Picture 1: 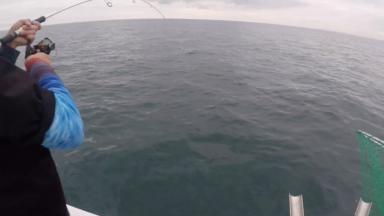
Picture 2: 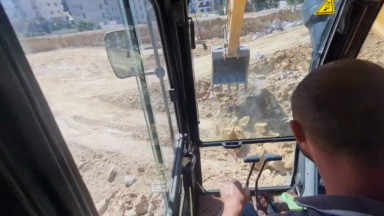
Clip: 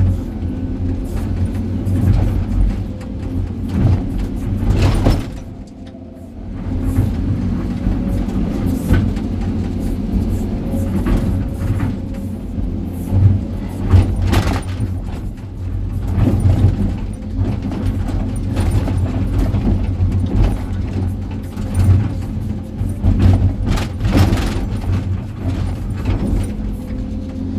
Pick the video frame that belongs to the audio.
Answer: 2